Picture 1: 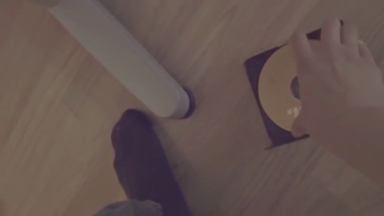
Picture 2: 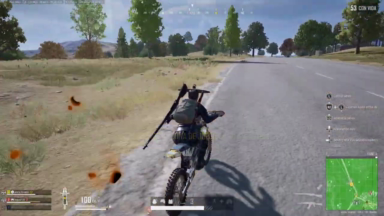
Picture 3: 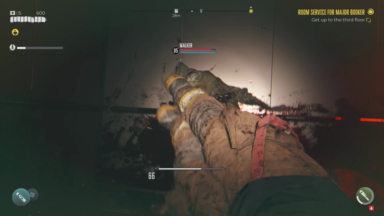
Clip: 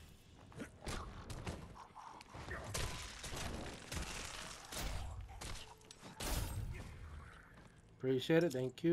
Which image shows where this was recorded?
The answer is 3